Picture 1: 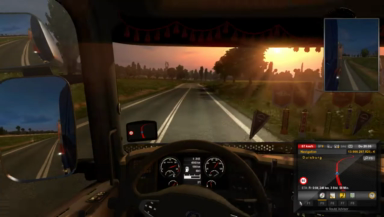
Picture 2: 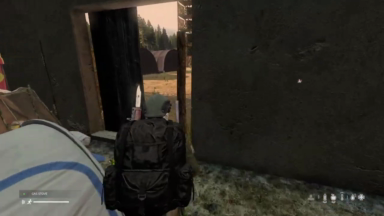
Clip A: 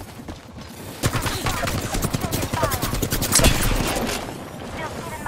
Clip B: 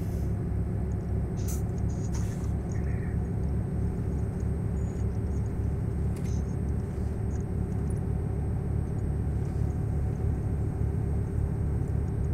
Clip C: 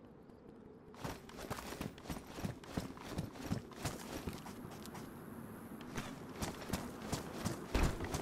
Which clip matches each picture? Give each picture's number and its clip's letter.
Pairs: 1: B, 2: C